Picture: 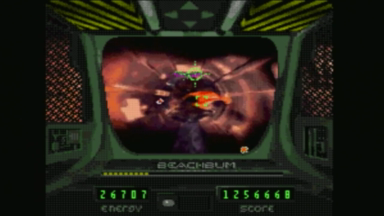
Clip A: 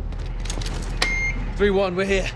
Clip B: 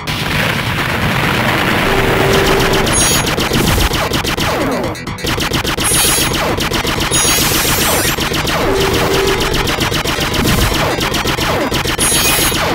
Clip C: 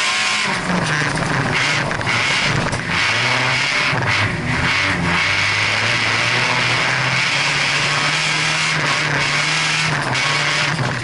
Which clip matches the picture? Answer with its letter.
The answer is B